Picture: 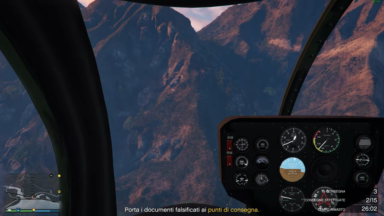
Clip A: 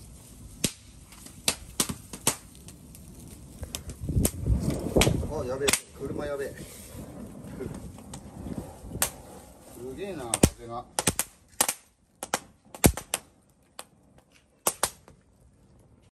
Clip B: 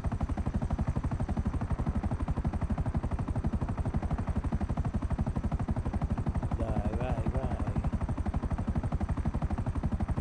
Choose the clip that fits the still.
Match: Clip B